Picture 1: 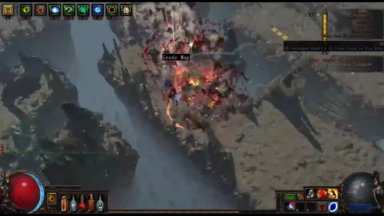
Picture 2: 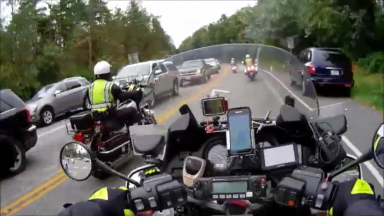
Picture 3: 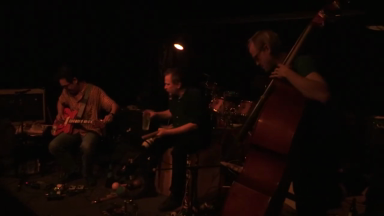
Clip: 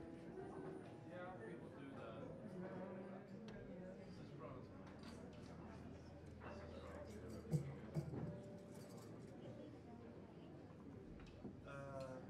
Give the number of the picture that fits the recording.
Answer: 3